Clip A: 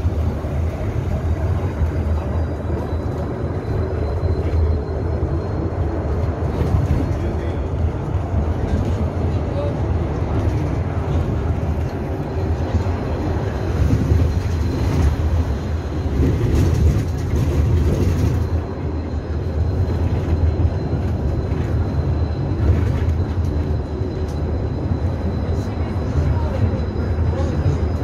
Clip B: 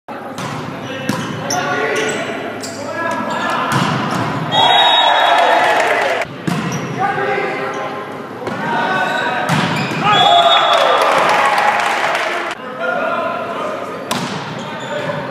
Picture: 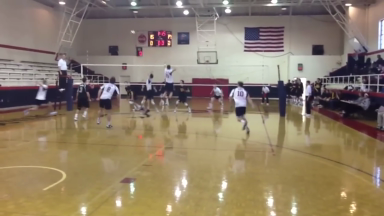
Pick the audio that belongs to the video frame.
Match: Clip B